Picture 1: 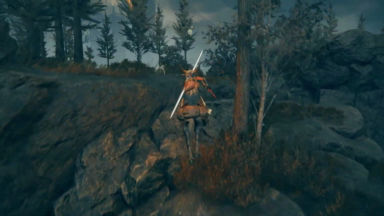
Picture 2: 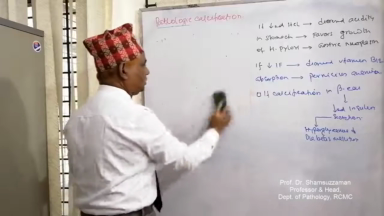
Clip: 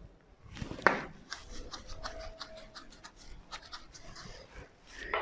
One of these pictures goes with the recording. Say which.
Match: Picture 2